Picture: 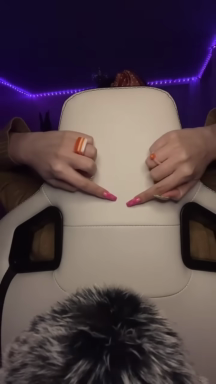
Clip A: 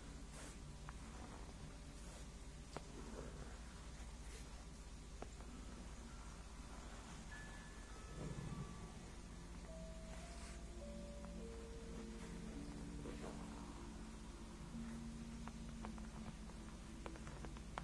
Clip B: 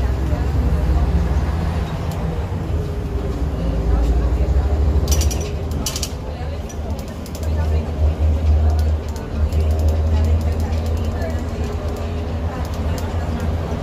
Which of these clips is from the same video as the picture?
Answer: A